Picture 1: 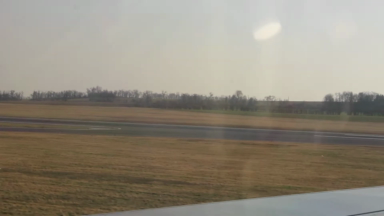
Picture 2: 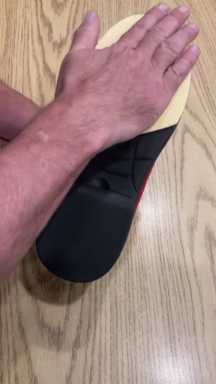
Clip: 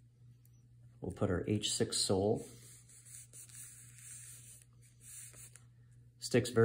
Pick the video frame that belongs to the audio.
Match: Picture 2